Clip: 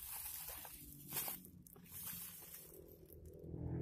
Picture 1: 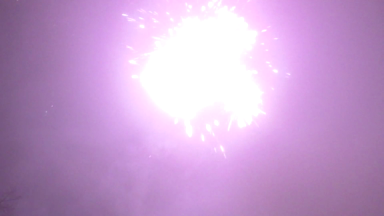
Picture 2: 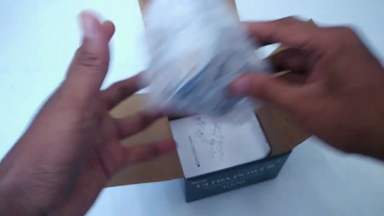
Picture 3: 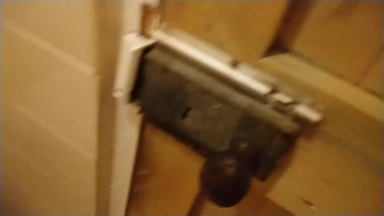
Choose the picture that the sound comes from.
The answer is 2